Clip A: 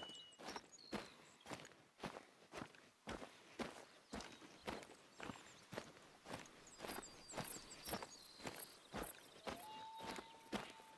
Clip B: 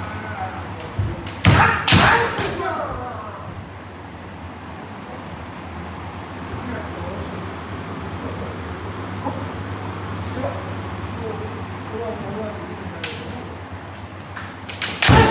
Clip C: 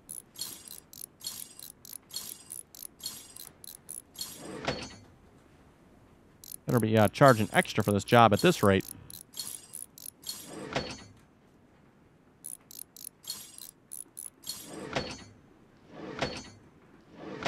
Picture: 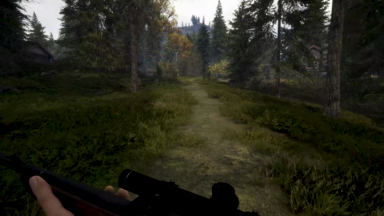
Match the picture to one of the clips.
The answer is A